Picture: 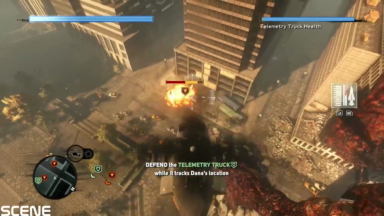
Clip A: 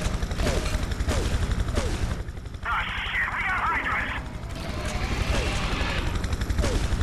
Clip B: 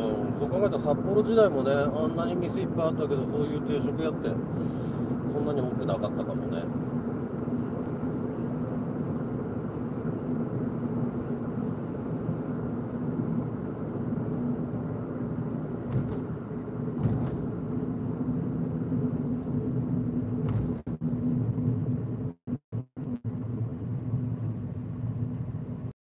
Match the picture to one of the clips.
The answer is A